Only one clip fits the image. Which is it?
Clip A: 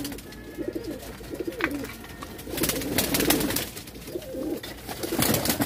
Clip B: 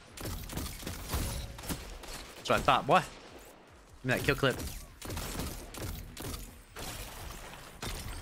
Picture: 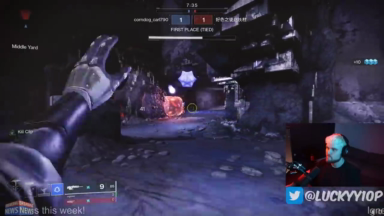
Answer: B